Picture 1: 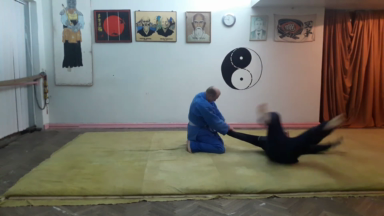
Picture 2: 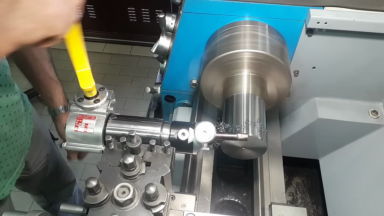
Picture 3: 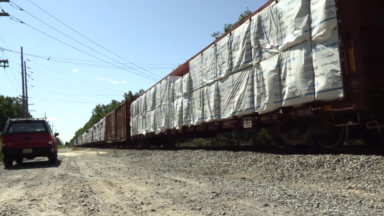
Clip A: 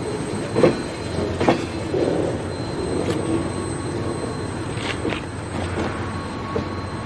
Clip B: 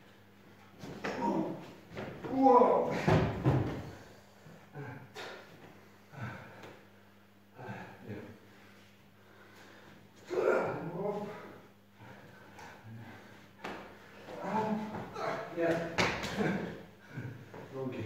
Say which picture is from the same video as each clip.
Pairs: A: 3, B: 1